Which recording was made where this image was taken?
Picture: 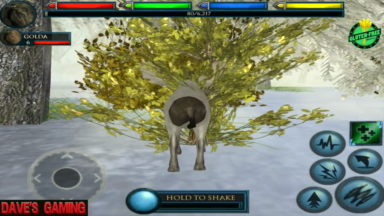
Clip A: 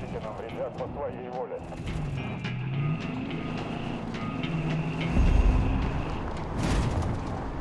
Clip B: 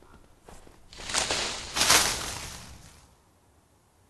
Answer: B